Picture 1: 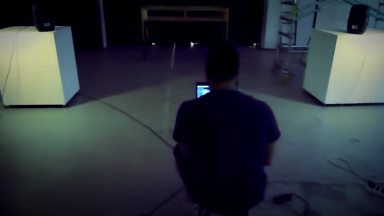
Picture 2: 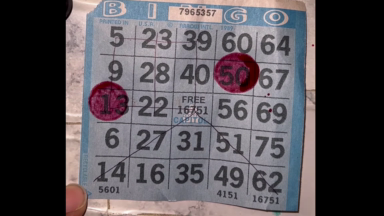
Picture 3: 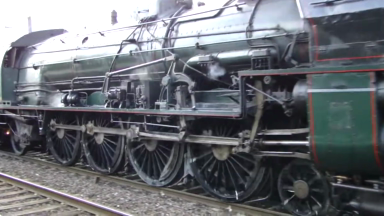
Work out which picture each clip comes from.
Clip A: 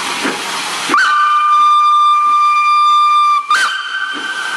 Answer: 3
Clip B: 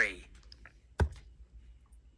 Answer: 2